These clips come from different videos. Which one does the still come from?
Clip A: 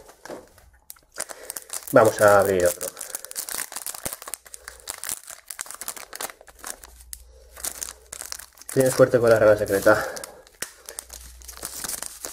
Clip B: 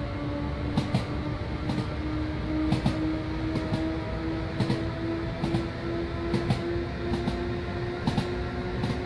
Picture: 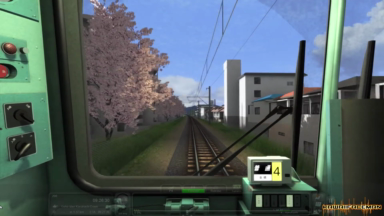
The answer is B